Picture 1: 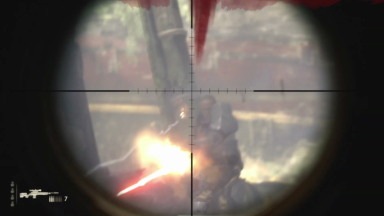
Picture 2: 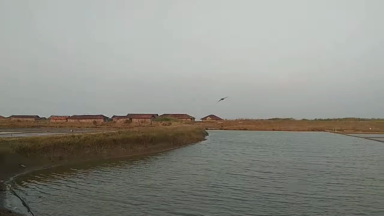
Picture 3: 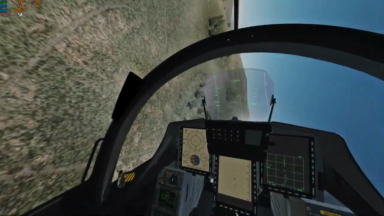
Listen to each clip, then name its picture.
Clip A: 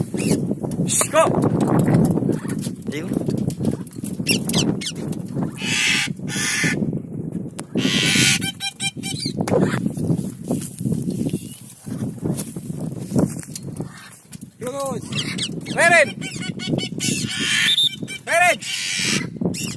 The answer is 2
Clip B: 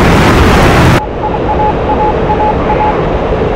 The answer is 3